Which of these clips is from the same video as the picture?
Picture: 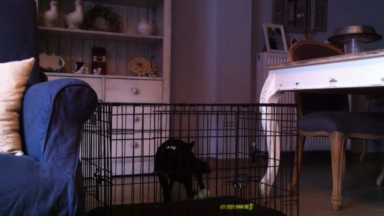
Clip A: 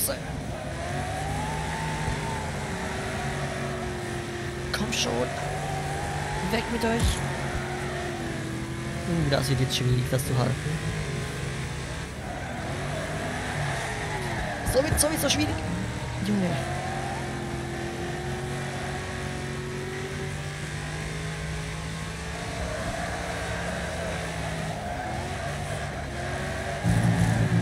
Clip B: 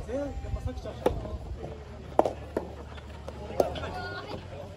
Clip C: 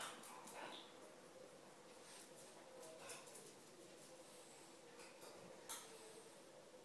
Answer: C